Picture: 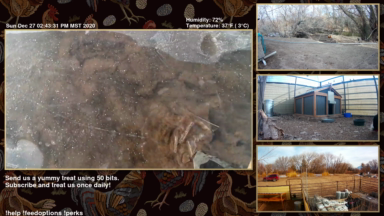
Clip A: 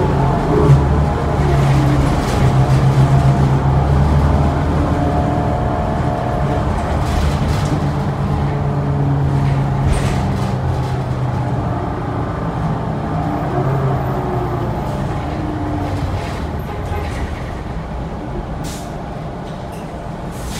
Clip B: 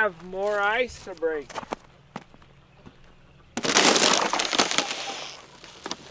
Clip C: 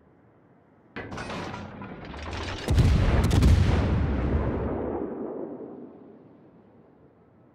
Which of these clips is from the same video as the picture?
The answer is B